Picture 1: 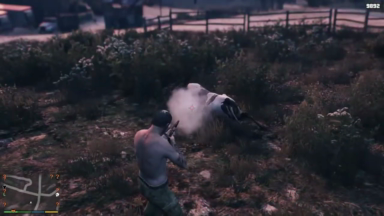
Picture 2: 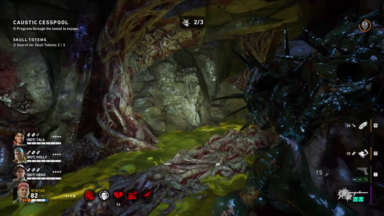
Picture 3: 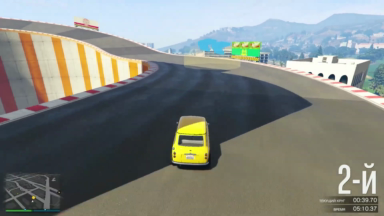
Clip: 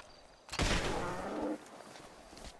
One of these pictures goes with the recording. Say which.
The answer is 1